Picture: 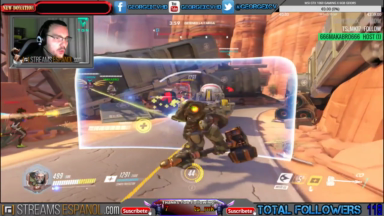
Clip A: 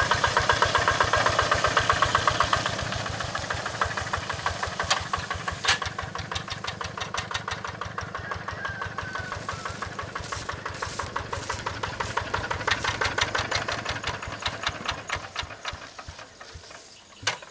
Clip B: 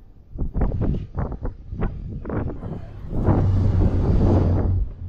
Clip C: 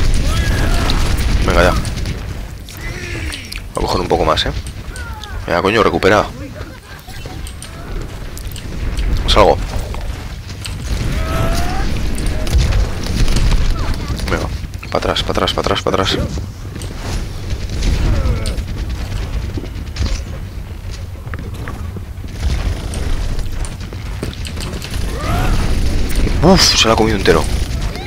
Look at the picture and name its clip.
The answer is C